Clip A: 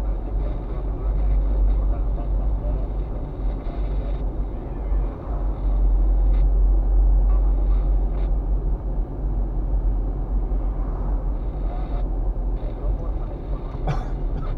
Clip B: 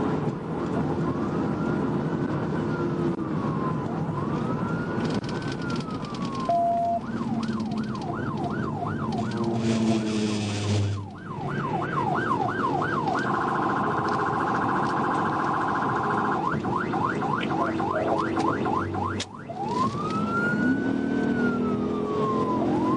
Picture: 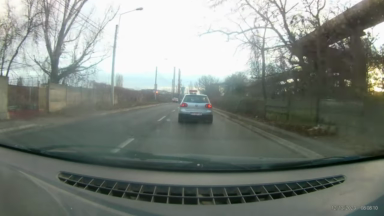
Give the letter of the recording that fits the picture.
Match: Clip A